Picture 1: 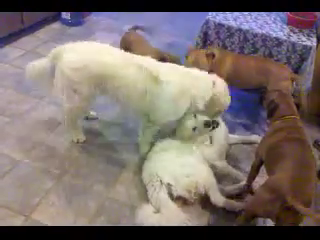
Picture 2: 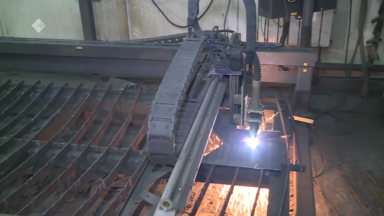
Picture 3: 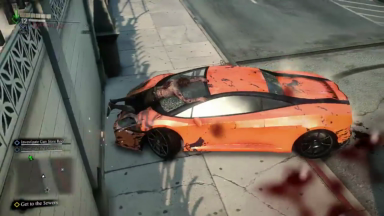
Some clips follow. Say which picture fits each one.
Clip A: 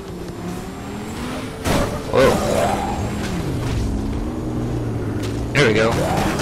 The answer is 3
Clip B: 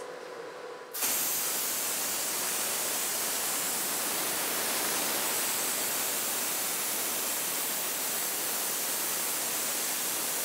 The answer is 2